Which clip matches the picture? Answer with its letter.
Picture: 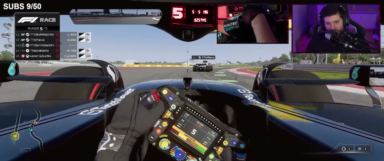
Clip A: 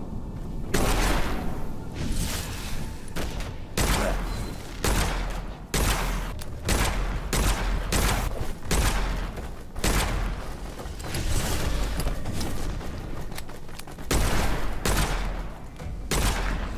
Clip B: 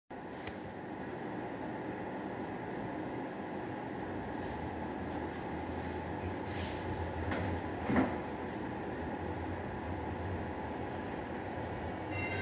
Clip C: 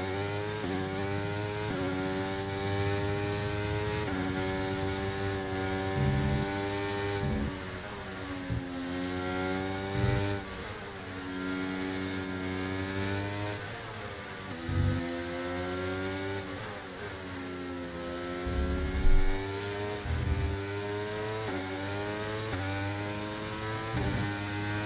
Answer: C